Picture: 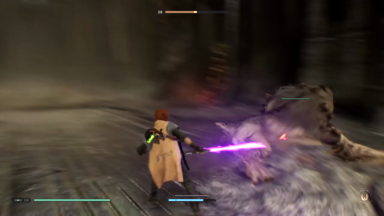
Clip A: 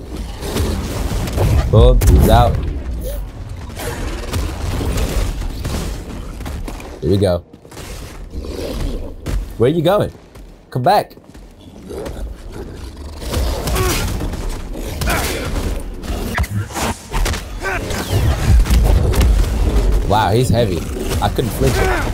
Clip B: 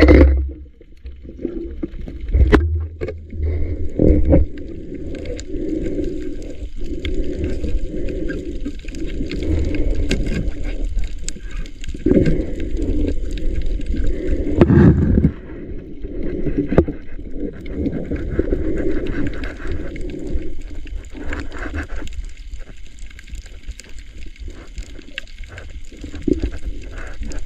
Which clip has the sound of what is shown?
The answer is A